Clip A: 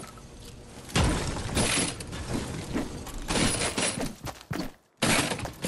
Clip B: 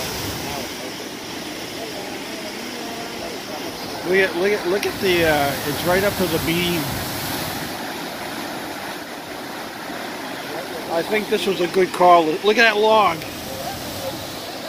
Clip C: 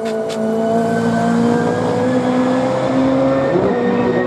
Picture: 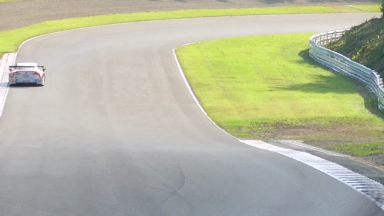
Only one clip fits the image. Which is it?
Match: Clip C